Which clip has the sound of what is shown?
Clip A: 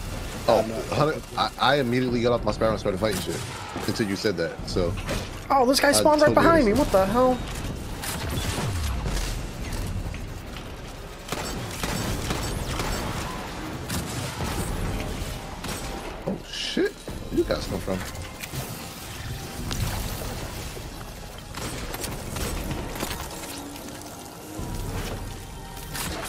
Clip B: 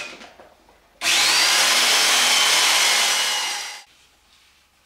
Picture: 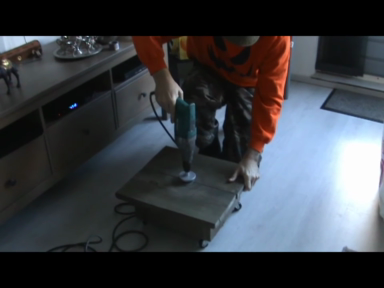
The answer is B